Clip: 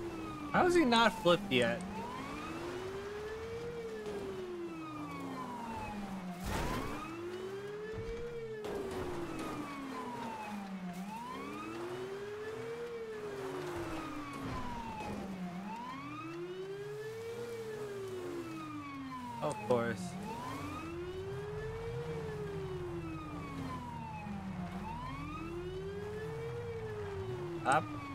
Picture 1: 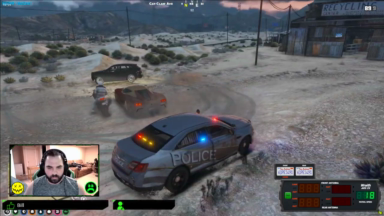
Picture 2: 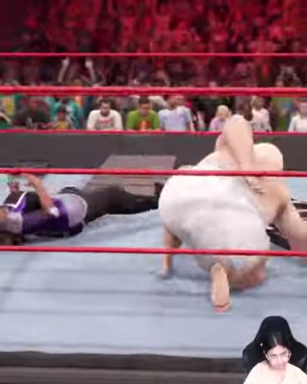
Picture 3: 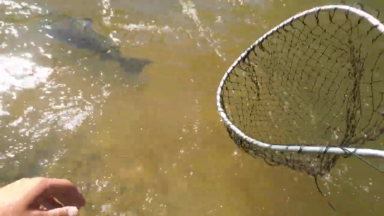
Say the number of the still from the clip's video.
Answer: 1